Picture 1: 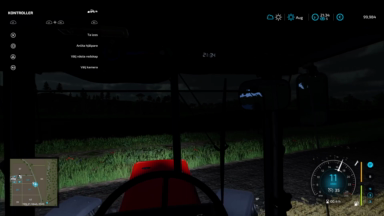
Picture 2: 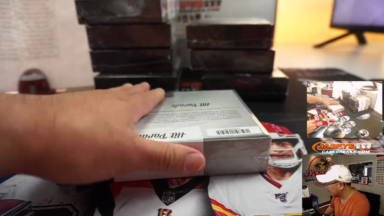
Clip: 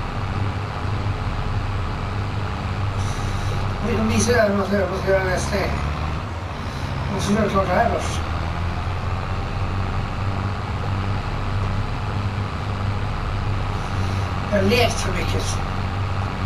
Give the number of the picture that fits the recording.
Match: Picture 1